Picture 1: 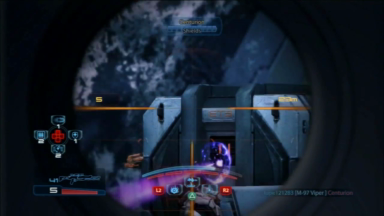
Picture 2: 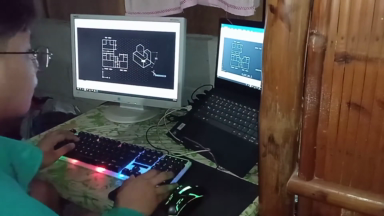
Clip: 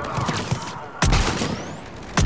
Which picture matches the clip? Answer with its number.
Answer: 1